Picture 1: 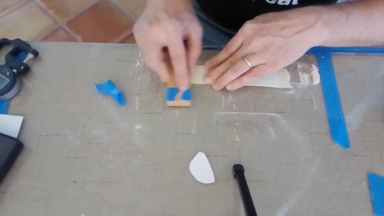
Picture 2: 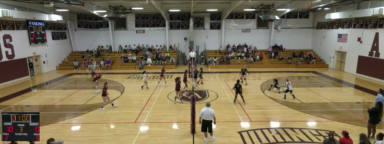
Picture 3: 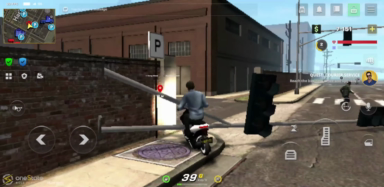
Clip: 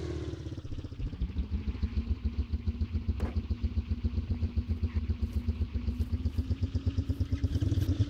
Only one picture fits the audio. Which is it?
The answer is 3